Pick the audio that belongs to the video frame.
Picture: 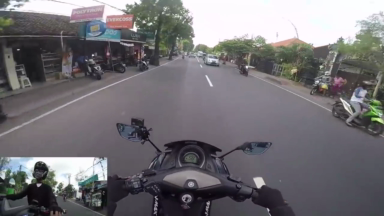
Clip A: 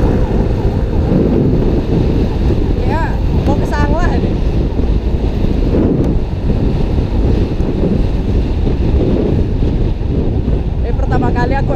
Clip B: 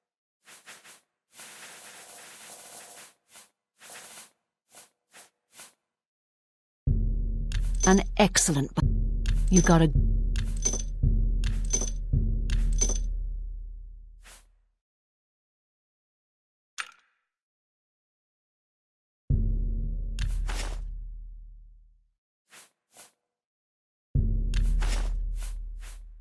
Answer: A